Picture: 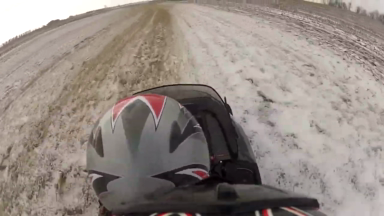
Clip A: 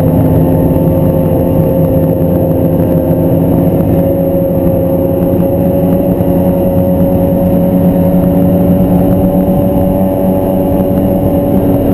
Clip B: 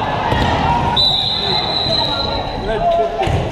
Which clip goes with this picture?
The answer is A